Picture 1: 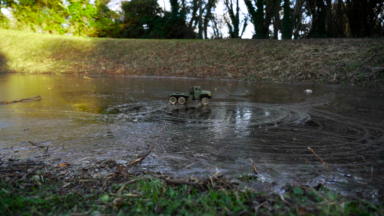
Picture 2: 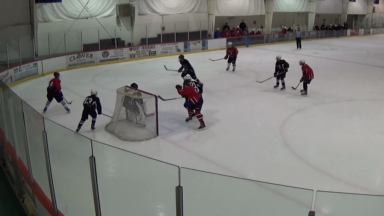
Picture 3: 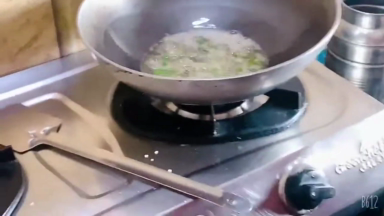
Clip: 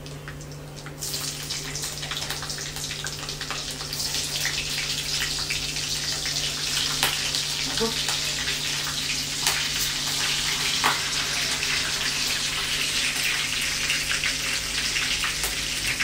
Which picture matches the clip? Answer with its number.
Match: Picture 3